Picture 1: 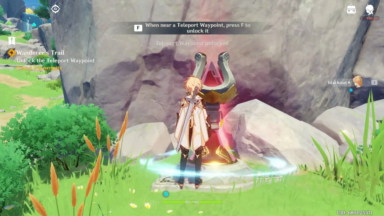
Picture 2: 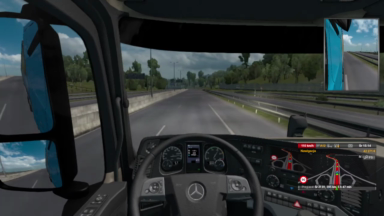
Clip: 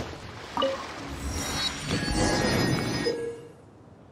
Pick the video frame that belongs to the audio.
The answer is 1